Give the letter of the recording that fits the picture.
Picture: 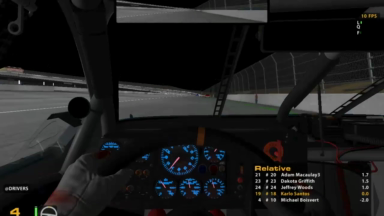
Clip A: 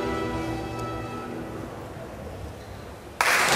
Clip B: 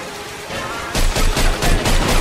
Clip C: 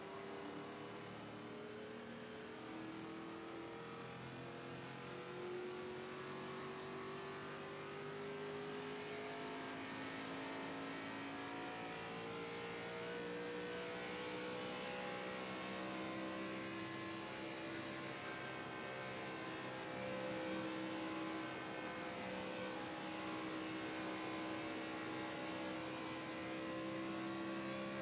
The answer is C